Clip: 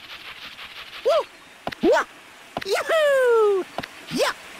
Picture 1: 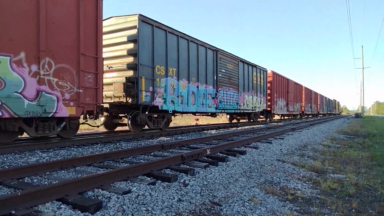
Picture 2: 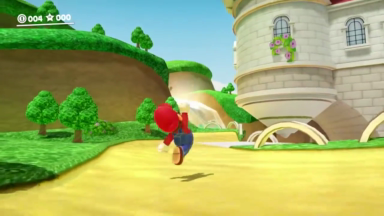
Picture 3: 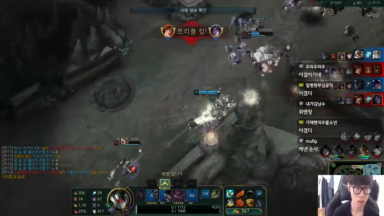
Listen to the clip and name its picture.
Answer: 2